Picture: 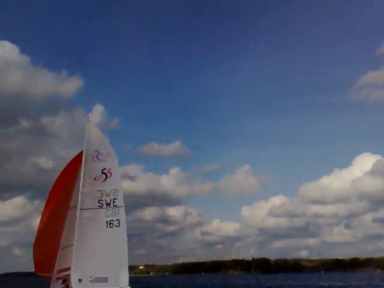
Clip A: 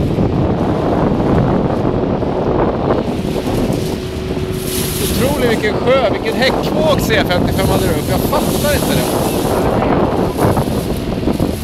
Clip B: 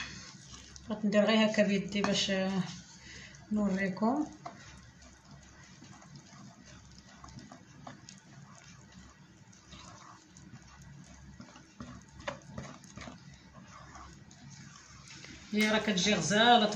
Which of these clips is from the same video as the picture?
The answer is A